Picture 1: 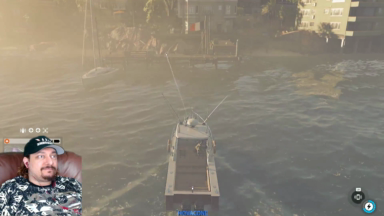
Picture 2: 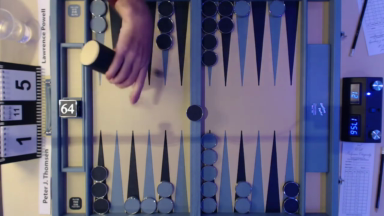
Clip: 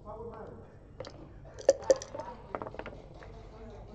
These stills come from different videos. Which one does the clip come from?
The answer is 2